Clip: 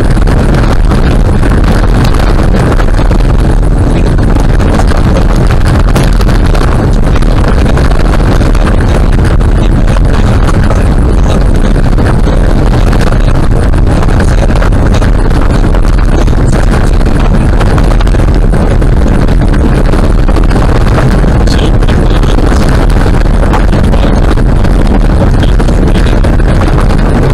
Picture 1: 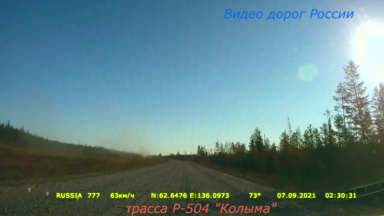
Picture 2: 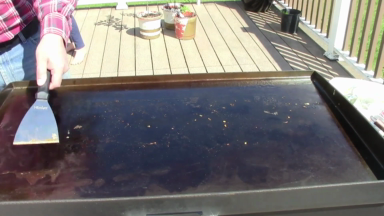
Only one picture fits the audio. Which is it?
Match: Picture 1